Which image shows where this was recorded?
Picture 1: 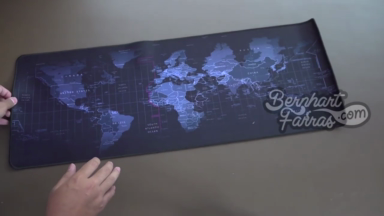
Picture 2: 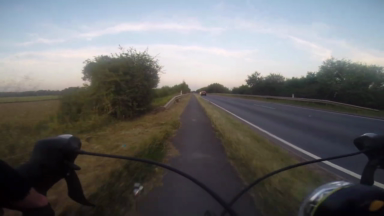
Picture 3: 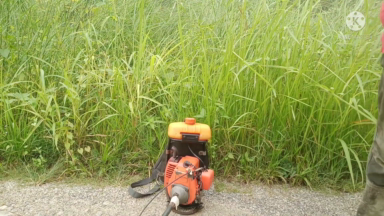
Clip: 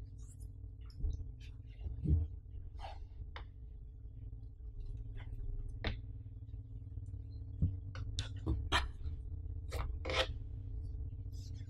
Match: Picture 1